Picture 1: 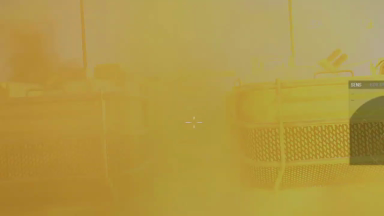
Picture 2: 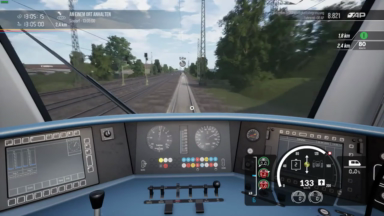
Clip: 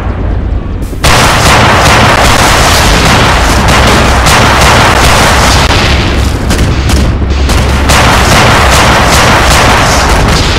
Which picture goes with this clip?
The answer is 1